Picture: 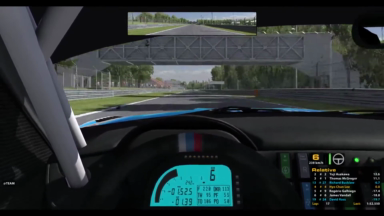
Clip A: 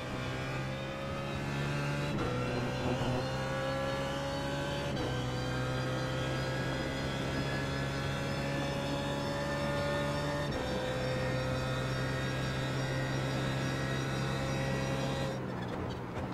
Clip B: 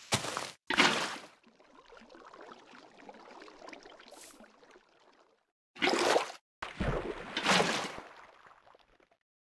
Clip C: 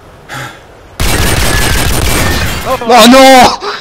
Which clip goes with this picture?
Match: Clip A